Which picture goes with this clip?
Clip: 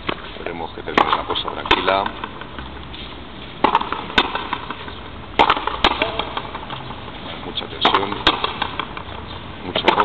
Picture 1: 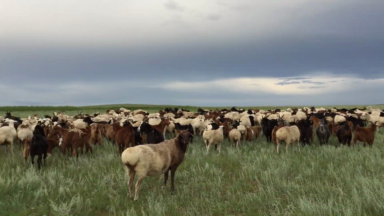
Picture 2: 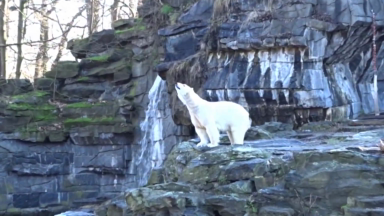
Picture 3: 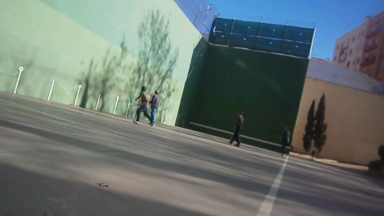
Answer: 3